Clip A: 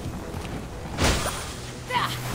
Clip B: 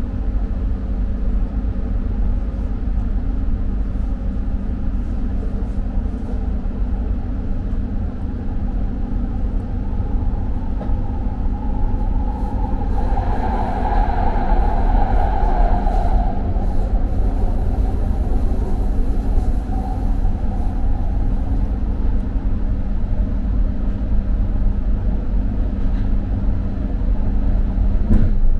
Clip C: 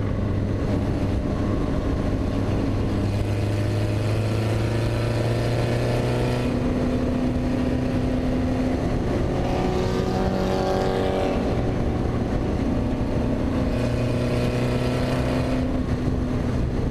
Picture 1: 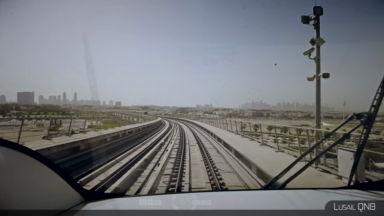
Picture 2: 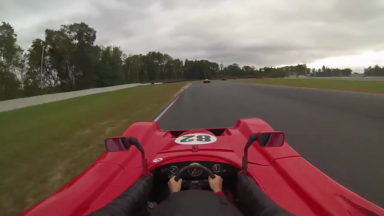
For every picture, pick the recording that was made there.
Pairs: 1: B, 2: C